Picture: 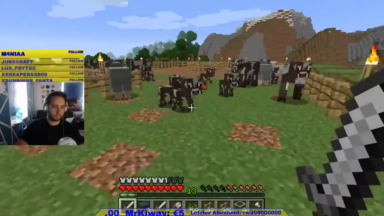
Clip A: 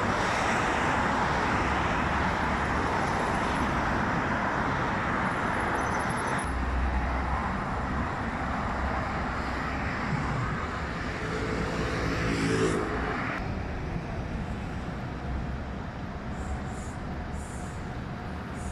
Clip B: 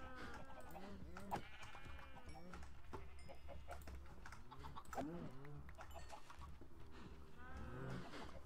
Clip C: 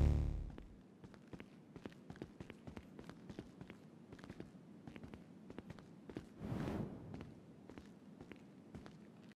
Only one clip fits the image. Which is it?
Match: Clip B